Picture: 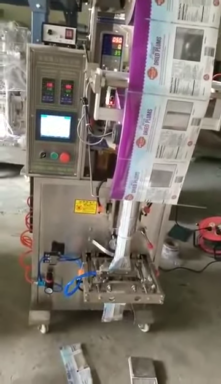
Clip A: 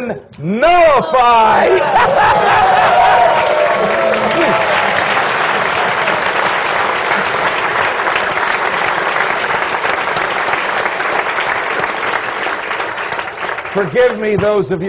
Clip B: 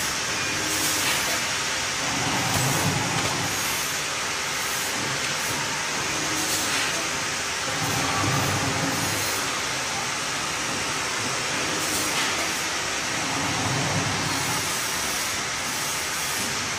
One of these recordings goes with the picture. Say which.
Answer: B